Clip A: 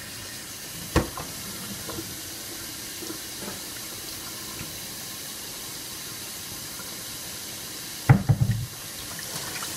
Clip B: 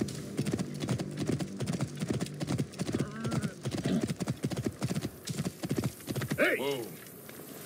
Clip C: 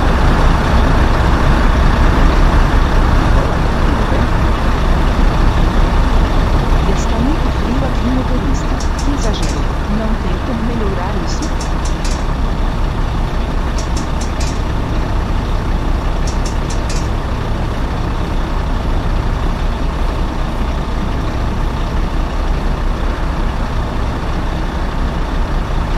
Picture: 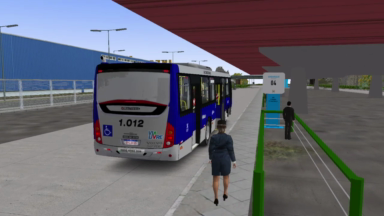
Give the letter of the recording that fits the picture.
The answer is C